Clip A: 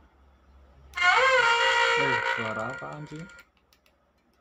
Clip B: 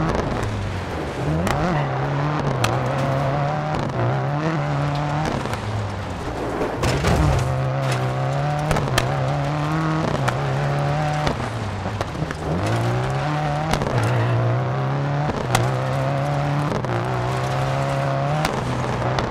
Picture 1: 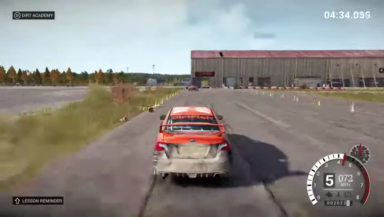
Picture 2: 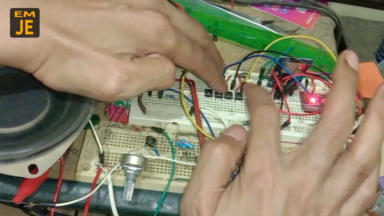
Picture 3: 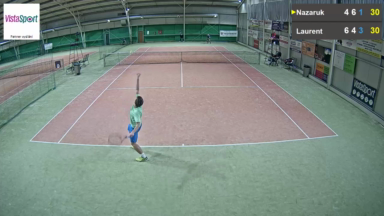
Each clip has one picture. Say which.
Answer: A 2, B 1